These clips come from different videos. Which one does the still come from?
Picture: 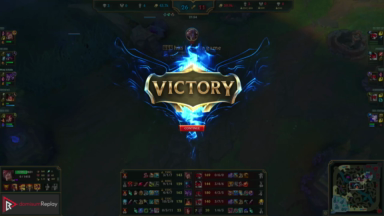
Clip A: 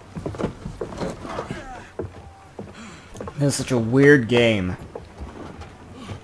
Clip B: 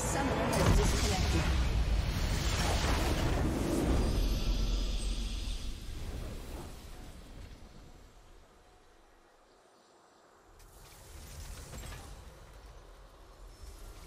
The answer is B